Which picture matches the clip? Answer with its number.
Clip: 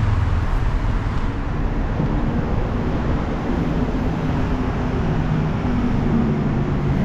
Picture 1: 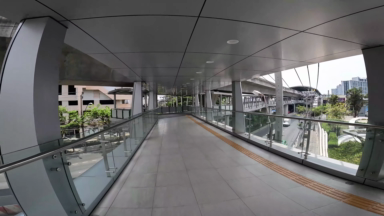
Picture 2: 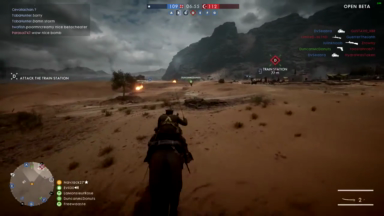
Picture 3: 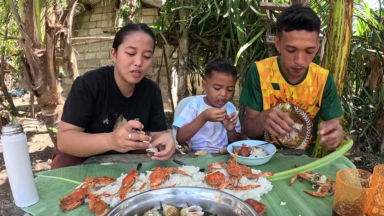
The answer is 1